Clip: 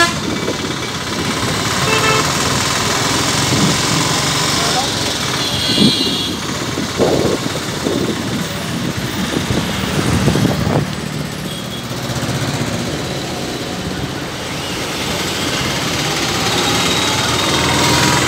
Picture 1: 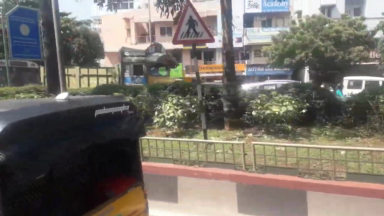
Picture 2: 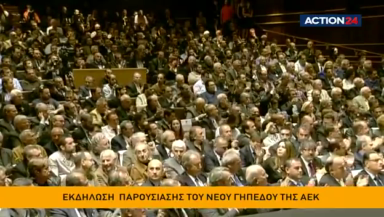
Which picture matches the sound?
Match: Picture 1